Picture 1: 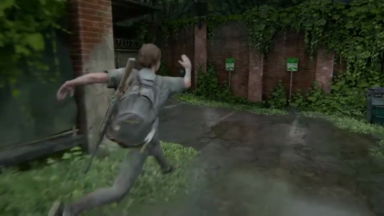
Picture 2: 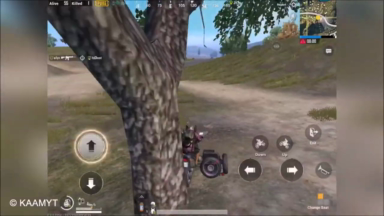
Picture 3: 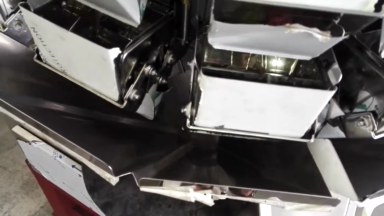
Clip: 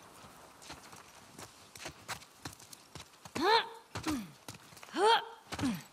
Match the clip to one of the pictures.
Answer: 1